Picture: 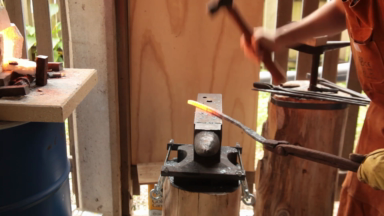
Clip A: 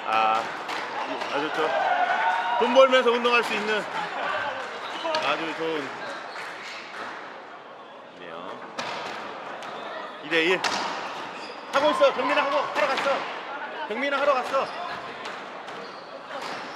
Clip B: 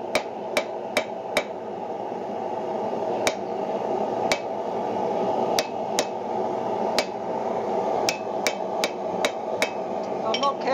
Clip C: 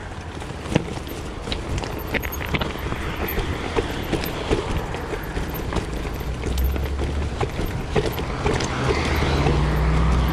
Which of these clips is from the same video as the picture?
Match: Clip B